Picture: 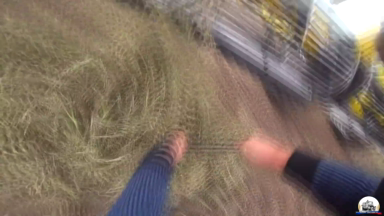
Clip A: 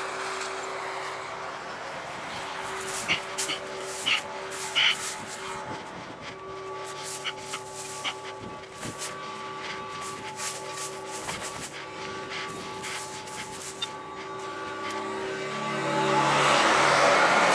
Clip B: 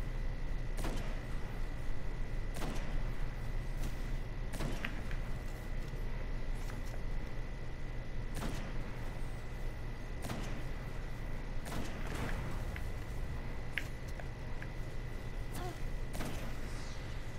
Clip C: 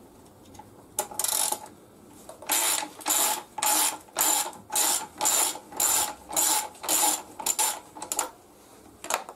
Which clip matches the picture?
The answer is A